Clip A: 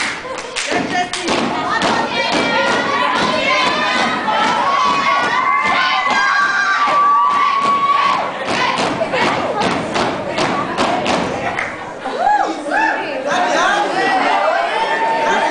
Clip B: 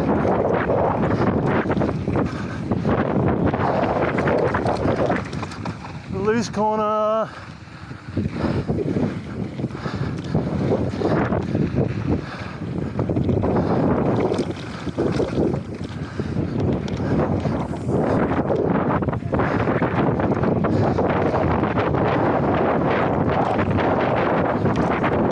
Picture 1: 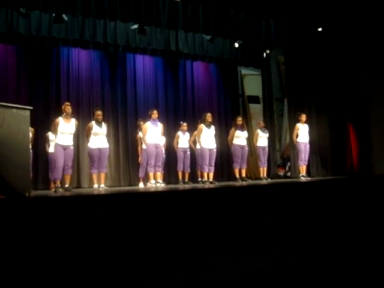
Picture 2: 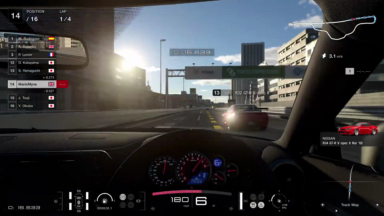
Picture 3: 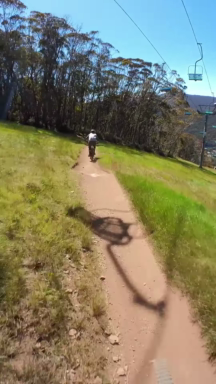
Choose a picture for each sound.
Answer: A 1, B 3